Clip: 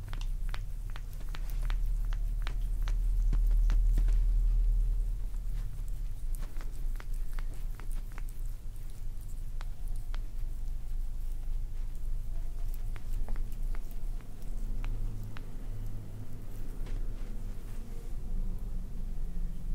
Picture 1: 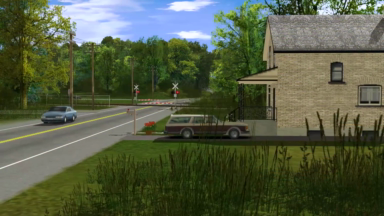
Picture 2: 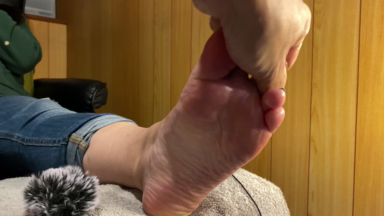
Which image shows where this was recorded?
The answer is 2